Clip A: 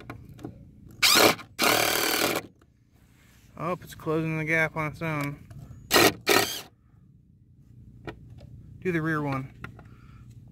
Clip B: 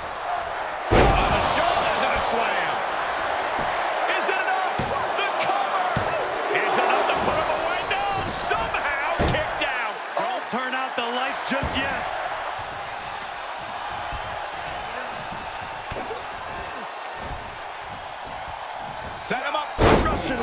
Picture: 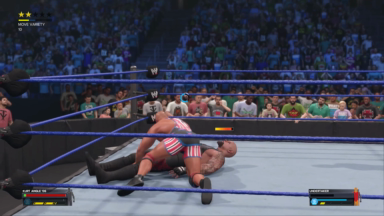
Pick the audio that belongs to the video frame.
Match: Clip B